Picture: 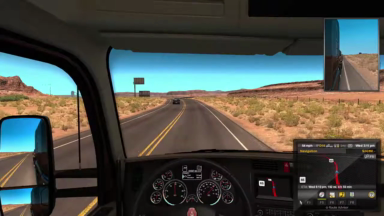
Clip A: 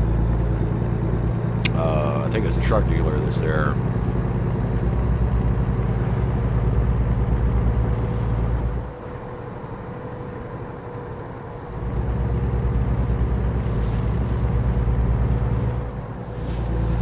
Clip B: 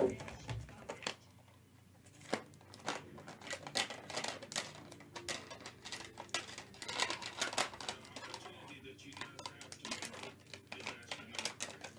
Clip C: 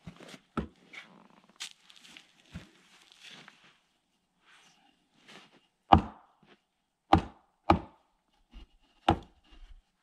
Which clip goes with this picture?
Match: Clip A